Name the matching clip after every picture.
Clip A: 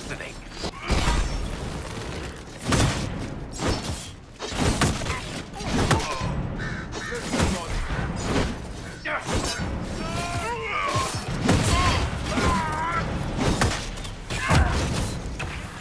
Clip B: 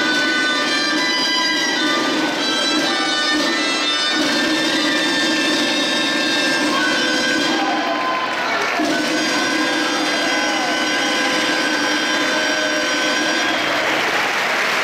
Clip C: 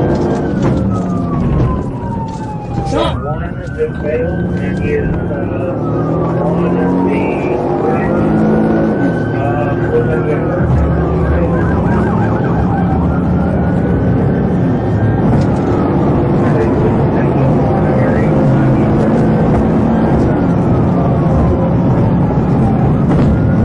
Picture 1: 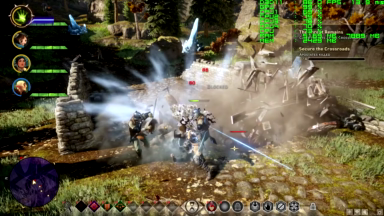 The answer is A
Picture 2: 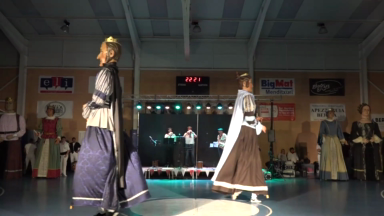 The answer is B